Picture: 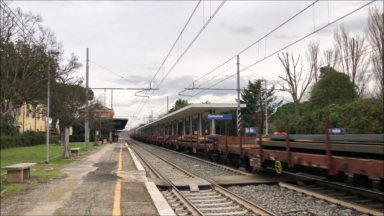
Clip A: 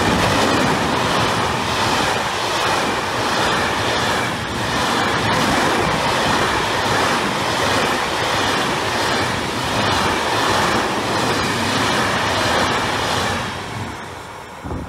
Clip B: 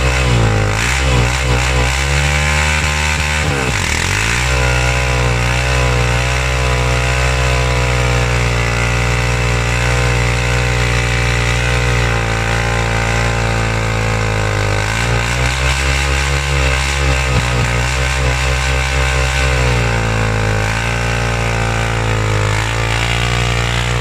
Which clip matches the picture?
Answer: A